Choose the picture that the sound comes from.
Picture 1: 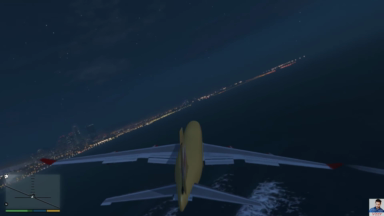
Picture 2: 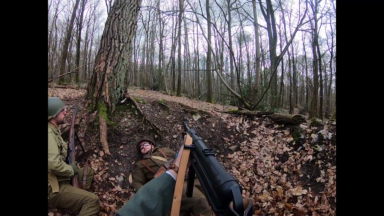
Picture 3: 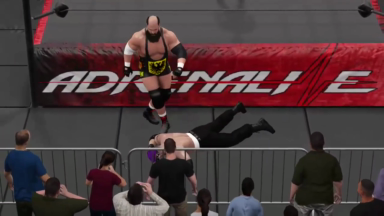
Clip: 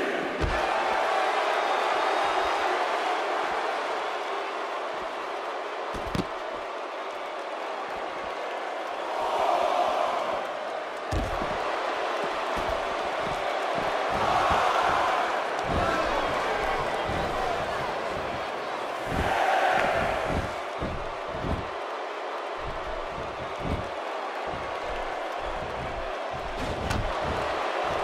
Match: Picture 3